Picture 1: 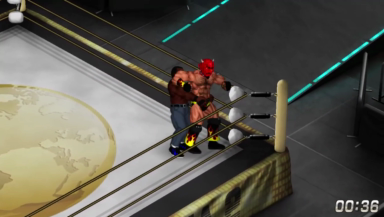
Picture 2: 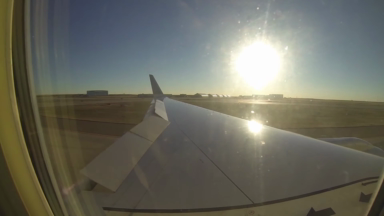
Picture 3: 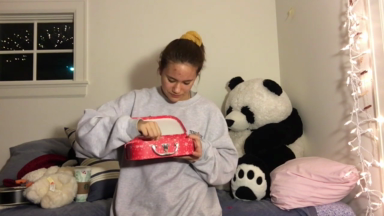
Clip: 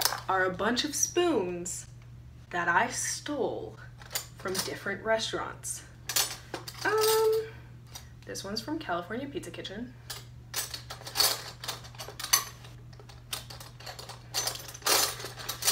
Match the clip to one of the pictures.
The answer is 3